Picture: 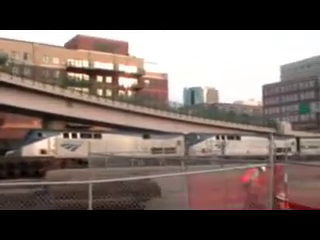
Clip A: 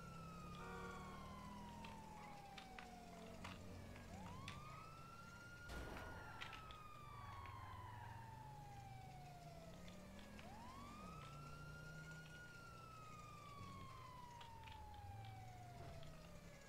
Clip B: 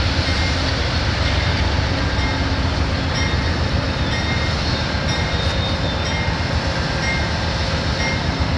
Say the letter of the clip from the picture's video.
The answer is B